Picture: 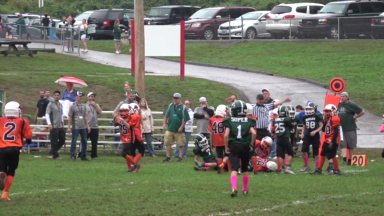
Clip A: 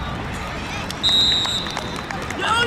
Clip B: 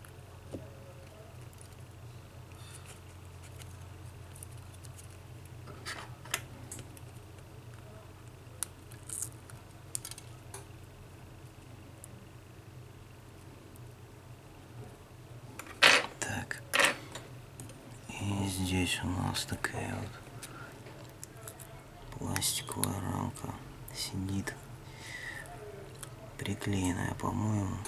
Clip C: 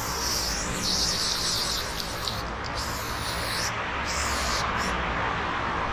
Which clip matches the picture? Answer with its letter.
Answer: A